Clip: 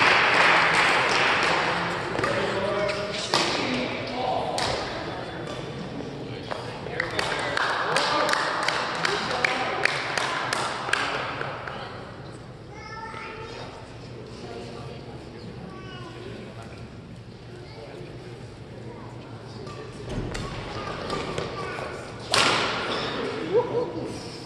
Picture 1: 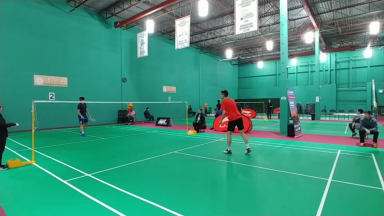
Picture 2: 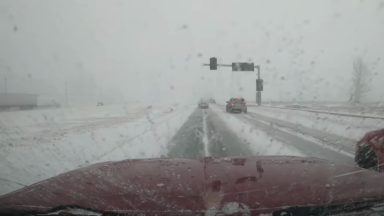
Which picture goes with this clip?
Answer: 1